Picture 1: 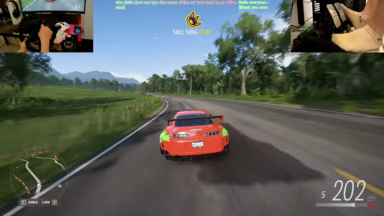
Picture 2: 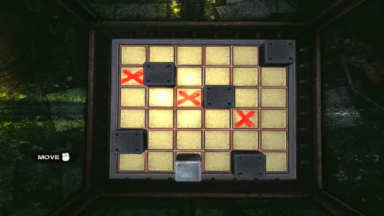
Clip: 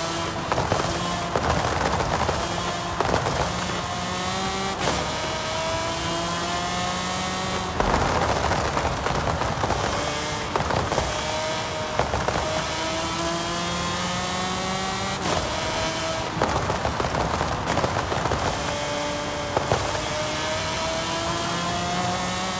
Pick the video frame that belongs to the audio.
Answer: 1